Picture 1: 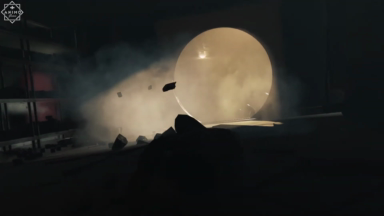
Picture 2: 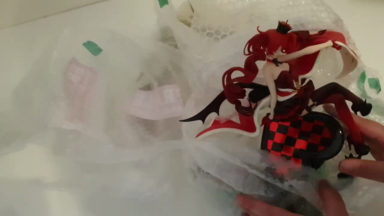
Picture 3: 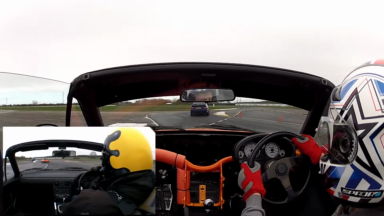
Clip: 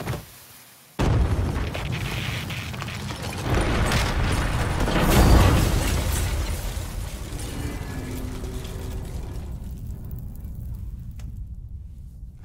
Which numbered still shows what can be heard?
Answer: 1